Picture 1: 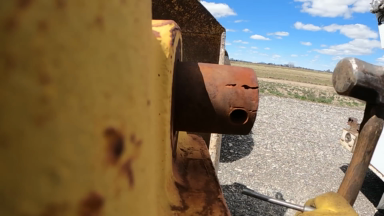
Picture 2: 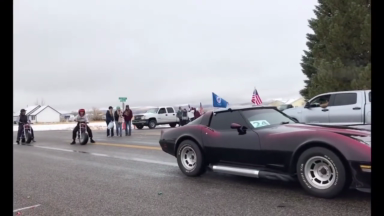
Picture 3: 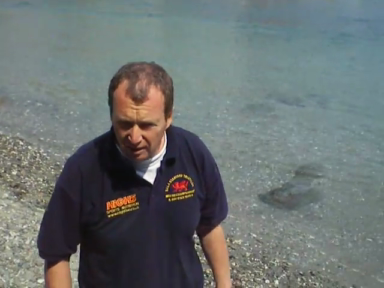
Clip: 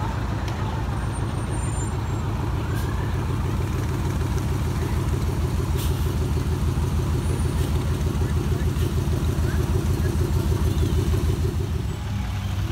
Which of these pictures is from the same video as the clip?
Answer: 2